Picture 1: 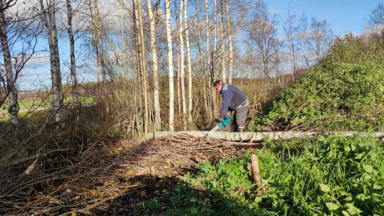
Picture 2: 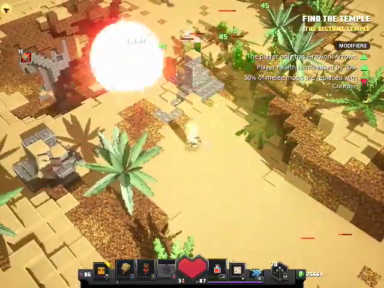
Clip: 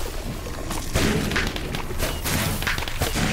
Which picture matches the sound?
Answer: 2